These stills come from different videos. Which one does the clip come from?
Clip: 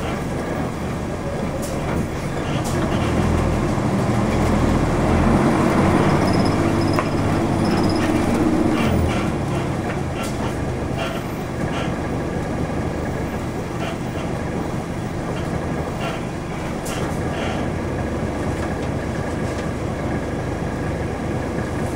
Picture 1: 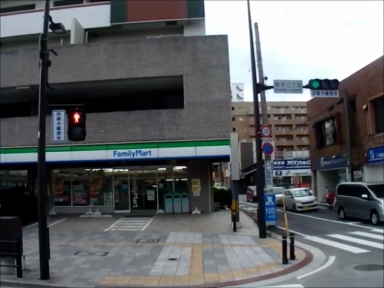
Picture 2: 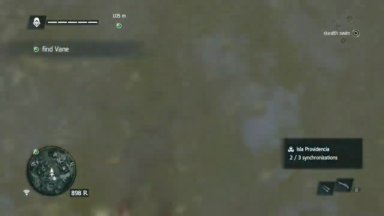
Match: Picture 1